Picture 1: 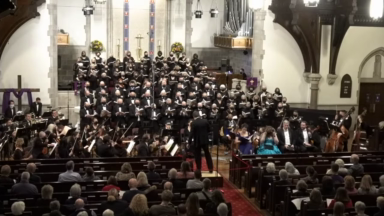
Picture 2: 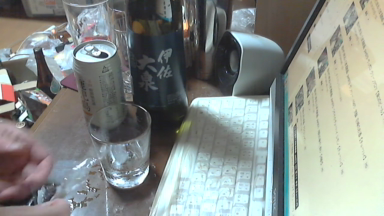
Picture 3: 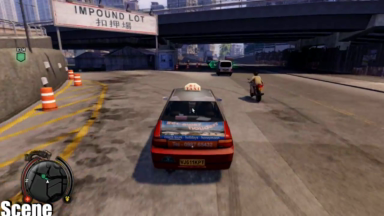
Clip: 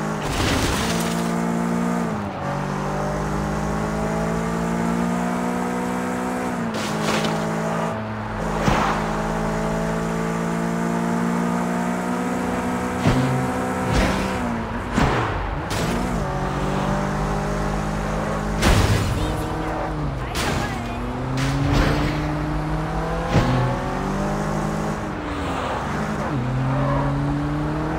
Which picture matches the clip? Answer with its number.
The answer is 3